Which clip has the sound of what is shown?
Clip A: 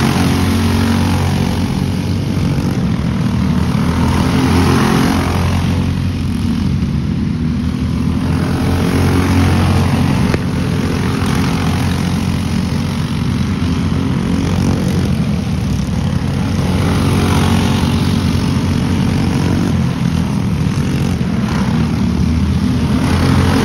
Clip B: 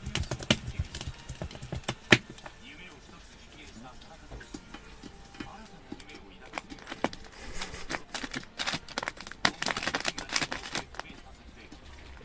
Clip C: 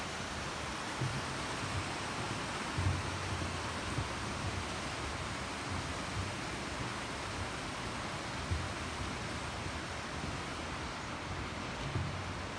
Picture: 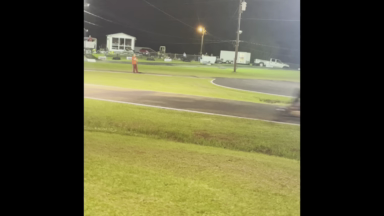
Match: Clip A